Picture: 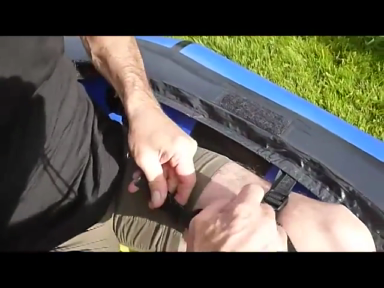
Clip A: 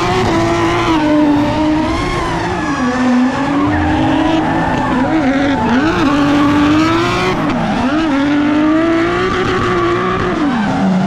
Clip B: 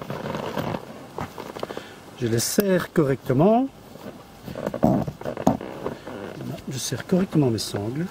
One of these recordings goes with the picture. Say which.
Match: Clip B